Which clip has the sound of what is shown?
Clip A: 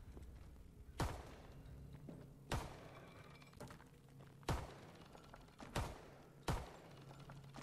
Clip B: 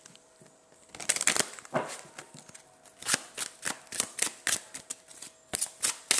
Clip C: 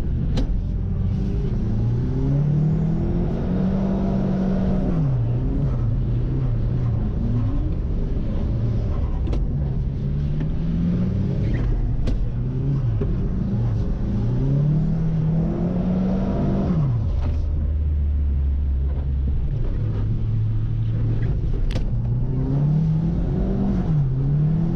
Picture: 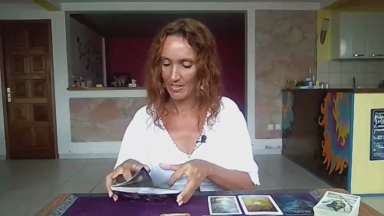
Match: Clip B